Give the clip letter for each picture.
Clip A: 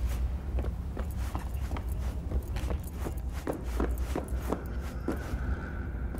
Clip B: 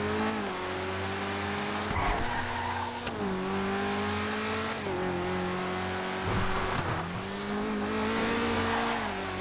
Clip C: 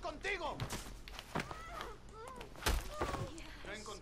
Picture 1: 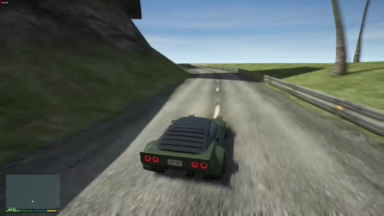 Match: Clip B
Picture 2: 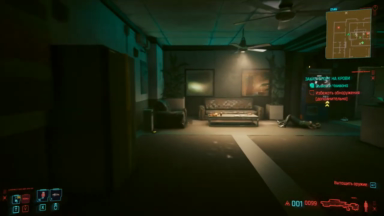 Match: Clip A